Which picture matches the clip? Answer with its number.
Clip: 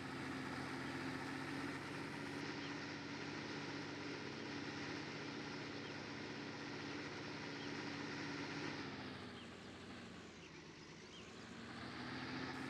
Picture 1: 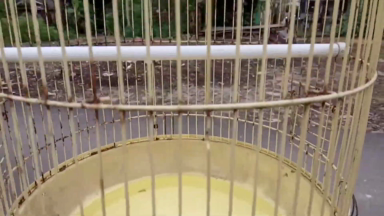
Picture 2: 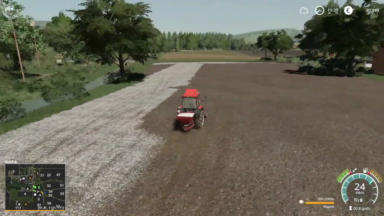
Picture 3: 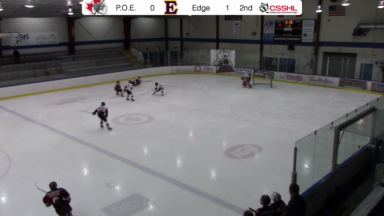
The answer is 2